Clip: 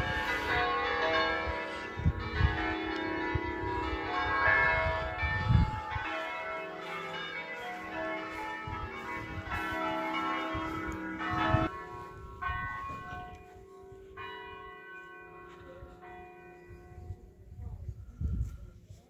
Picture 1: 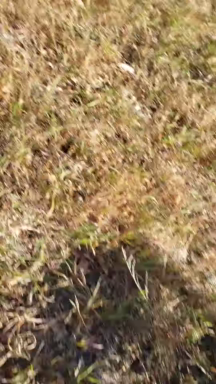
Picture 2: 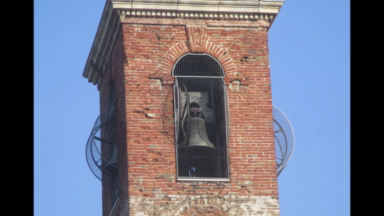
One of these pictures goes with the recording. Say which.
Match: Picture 2